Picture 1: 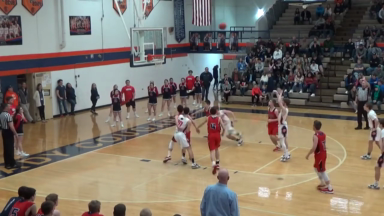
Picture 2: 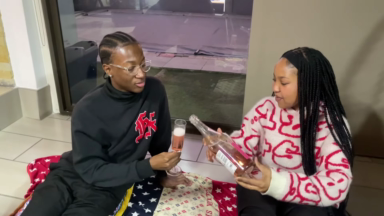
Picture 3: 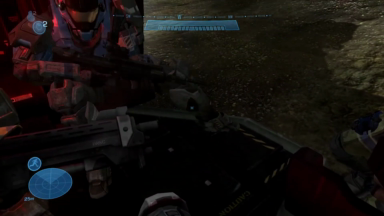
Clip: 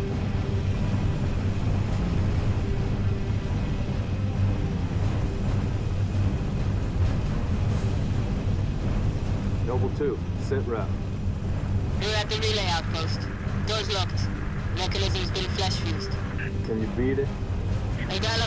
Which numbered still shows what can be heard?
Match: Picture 3